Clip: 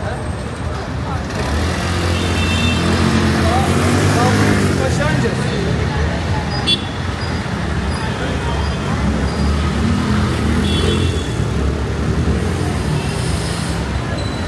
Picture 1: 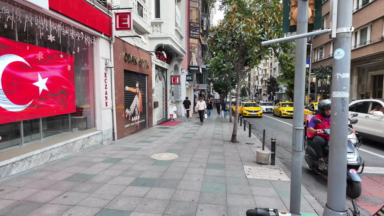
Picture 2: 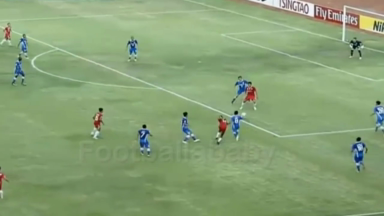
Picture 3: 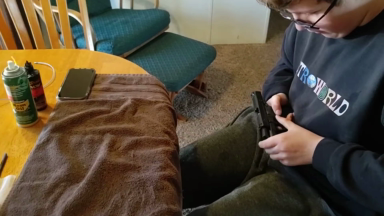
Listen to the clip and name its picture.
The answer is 1